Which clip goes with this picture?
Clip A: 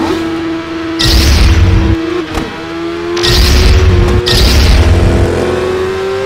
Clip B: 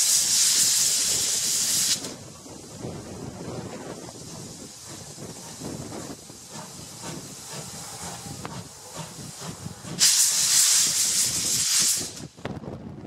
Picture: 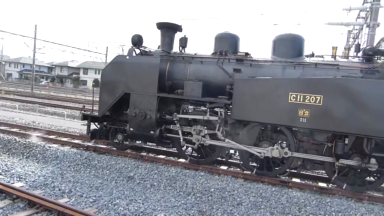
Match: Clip B